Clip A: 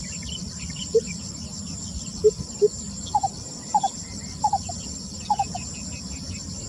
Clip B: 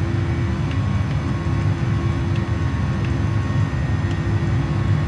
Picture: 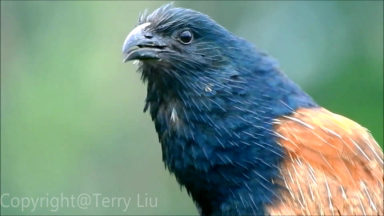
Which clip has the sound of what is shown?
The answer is A